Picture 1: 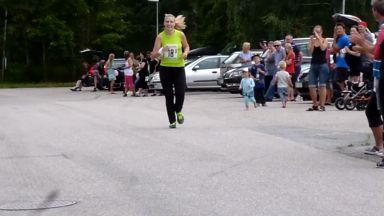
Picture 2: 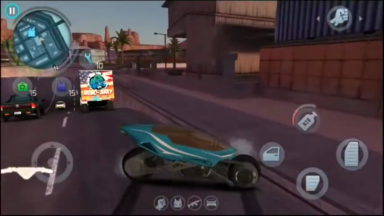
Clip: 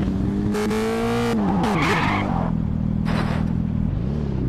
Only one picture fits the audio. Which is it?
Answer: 2